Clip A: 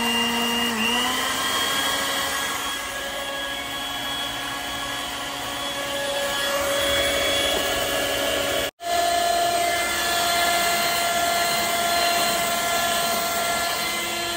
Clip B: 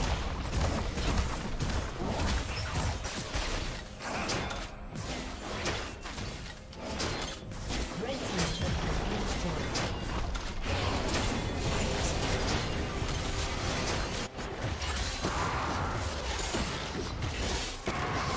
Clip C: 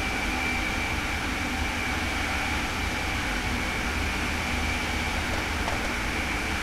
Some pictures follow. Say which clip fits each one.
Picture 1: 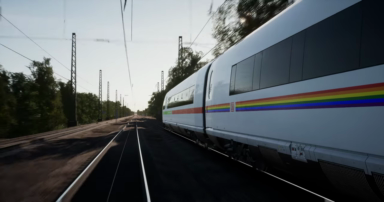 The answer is C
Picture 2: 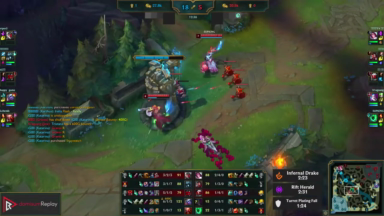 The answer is B